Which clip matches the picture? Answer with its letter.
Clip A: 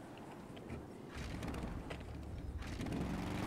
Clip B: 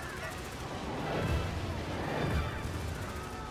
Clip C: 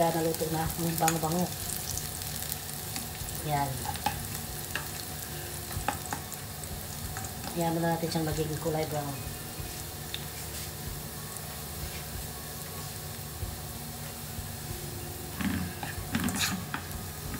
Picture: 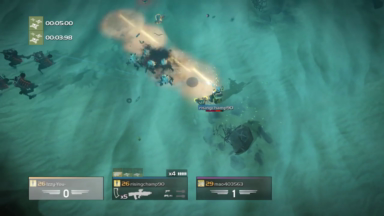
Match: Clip B